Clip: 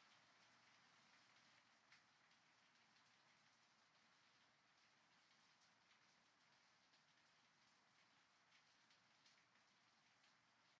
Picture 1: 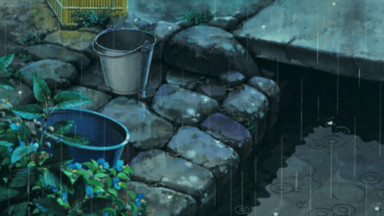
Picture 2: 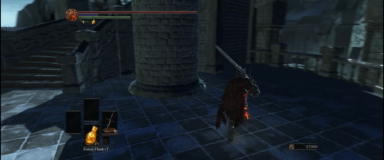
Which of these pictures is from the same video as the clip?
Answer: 1